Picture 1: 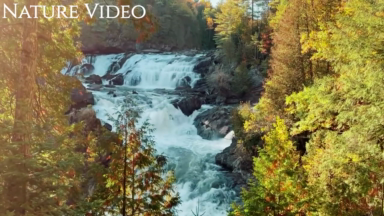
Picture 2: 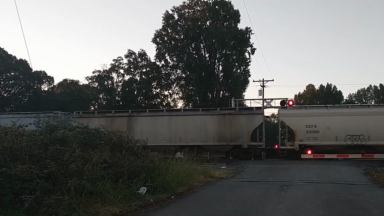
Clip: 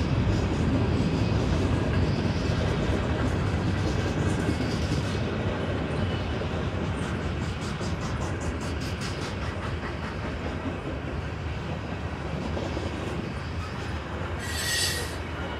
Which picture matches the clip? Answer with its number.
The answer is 2